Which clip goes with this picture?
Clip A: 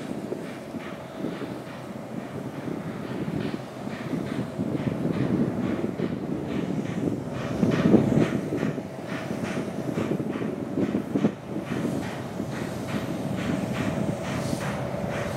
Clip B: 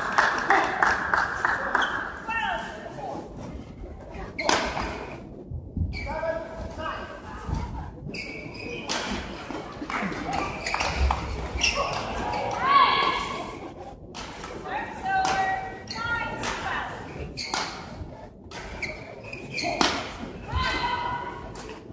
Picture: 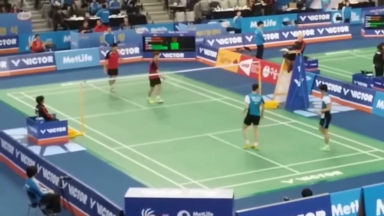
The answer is B